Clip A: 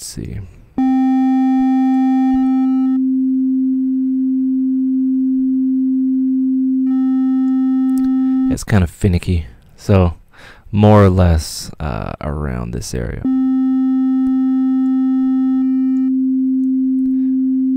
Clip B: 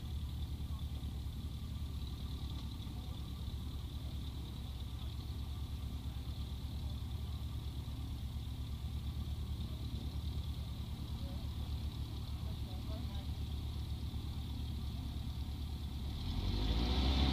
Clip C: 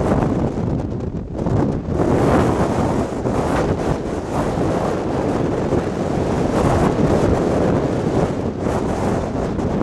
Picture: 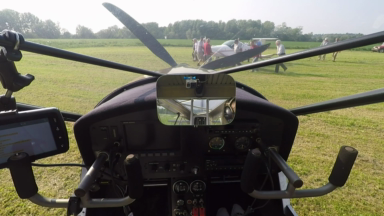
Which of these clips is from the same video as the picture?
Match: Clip B